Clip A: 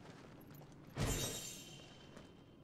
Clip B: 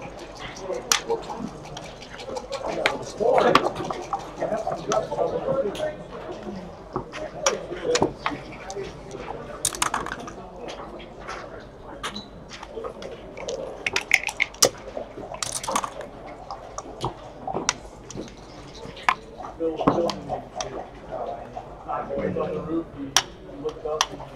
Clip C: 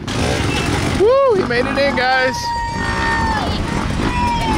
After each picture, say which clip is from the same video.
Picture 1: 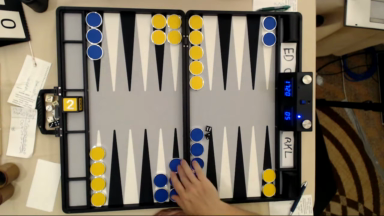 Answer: B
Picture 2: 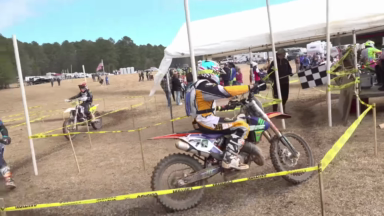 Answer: C